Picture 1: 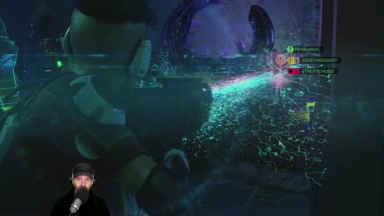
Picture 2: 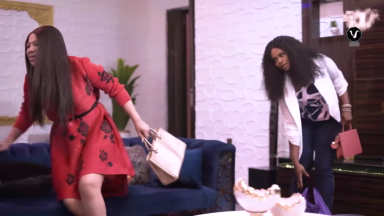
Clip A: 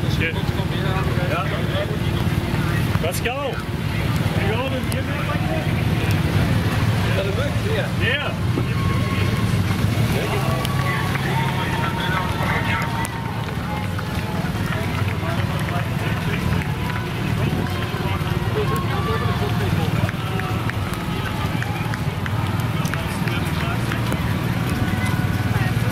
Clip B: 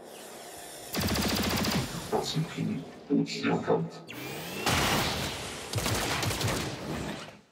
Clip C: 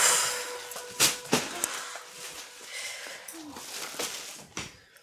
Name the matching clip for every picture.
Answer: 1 B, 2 C